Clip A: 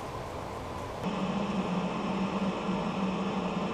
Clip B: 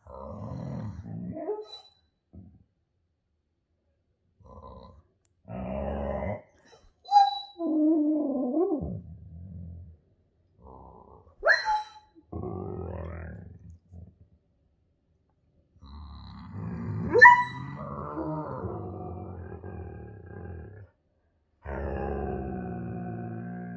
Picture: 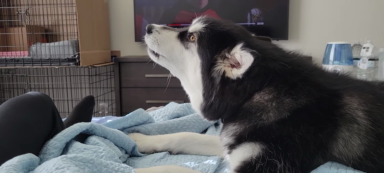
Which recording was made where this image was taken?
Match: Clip B